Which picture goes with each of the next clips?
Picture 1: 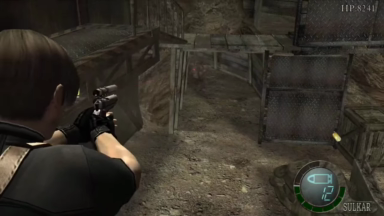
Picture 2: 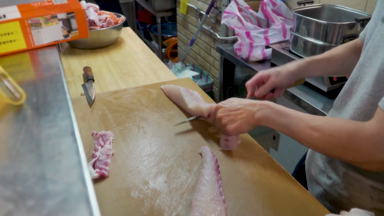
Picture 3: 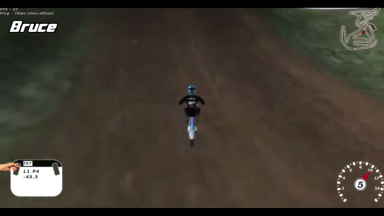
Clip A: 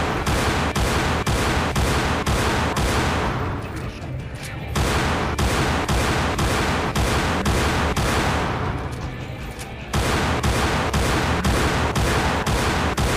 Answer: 1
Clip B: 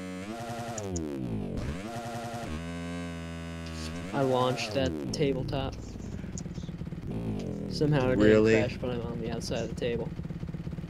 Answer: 3